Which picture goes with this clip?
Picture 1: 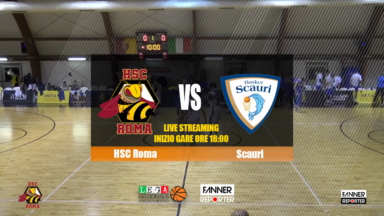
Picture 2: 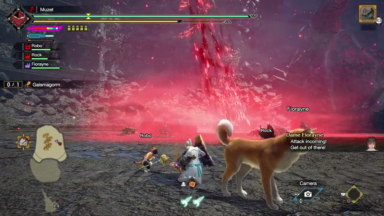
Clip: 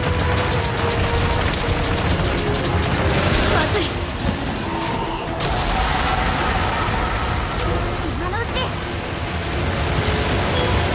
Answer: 2